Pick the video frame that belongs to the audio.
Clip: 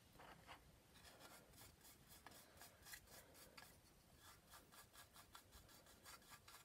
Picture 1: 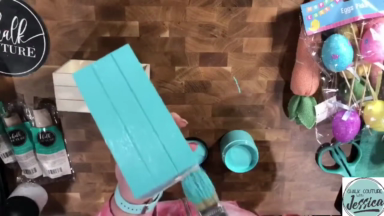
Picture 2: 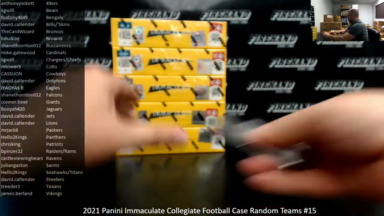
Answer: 1